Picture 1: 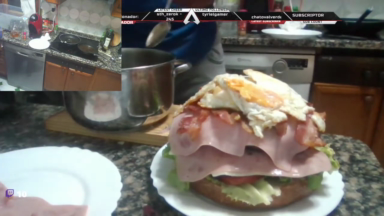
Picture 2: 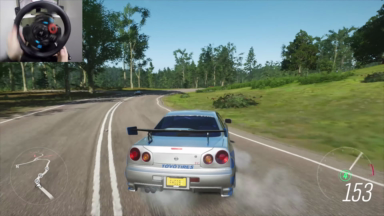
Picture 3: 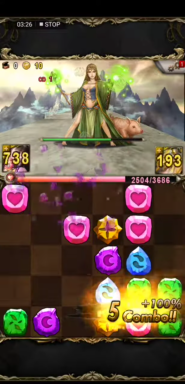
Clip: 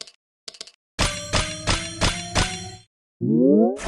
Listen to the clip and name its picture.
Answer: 3